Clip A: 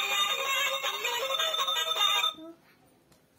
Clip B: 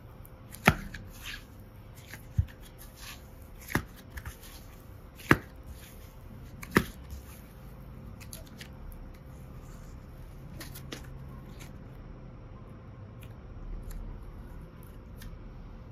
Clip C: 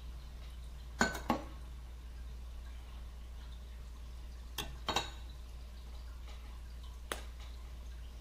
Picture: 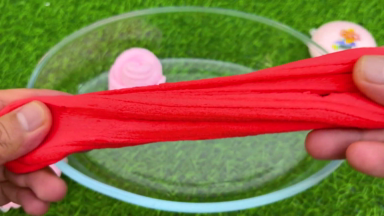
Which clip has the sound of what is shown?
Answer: B